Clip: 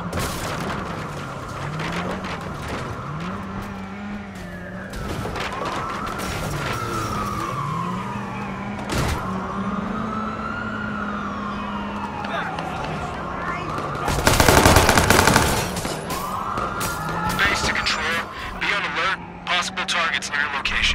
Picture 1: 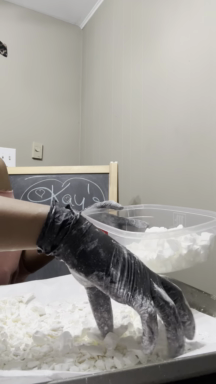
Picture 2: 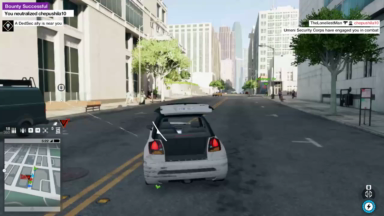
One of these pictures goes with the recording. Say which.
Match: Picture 2